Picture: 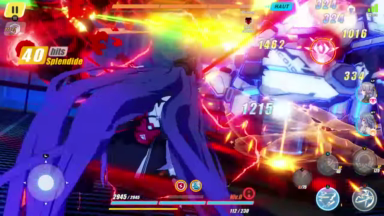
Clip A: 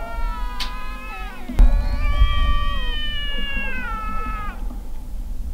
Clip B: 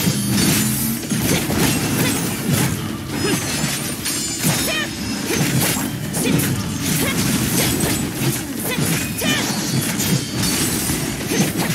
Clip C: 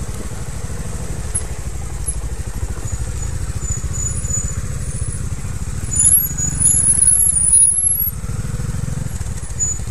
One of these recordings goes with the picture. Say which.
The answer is B